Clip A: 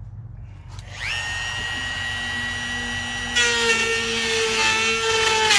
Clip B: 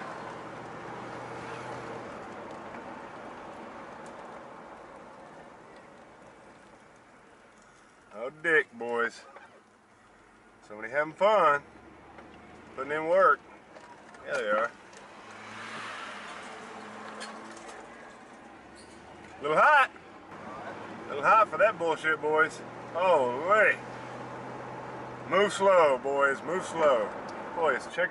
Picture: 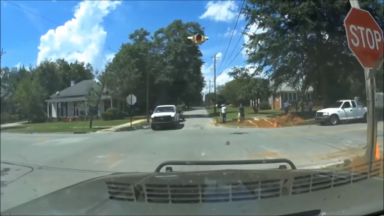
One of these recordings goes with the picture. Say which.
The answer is B